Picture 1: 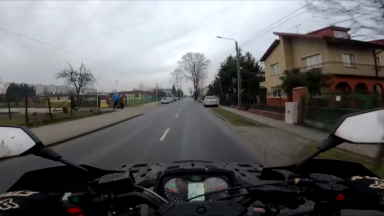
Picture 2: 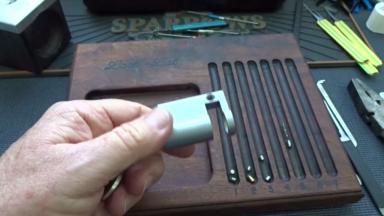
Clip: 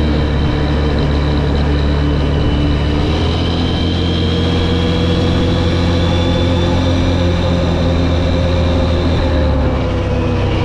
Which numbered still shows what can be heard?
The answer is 1